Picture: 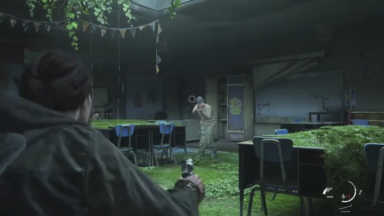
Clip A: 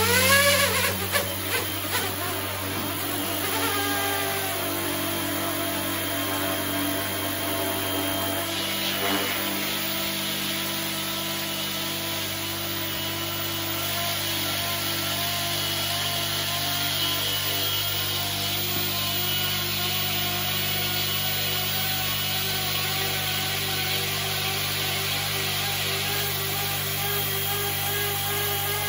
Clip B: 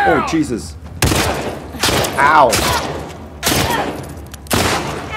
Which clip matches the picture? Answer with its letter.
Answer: B